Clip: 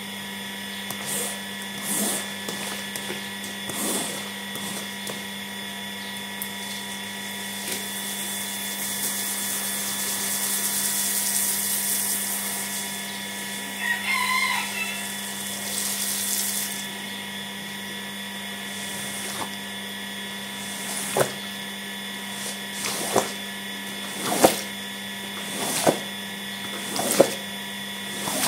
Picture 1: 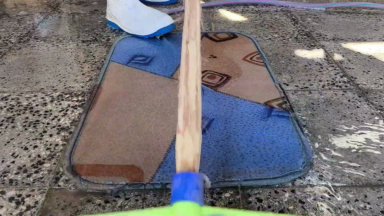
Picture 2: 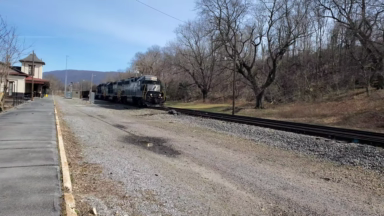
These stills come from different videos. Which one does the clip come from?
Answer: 1